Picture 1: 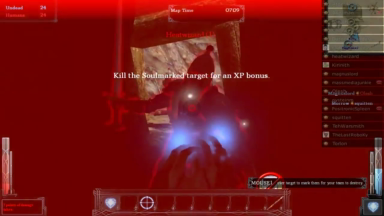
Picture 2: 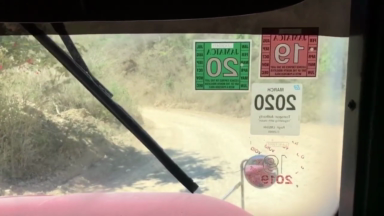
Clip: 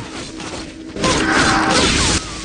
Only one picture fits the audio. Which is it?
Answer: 1